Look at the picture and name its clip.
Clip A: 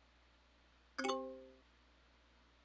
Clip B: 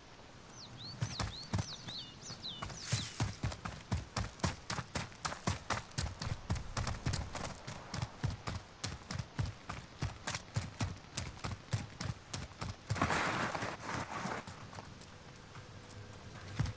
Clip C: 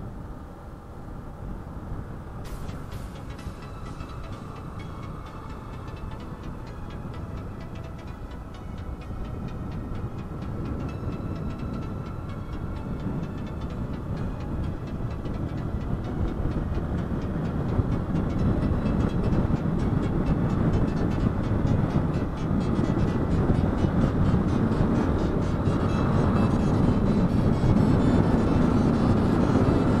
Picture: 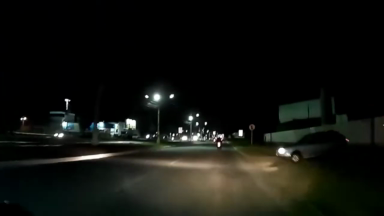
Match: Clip C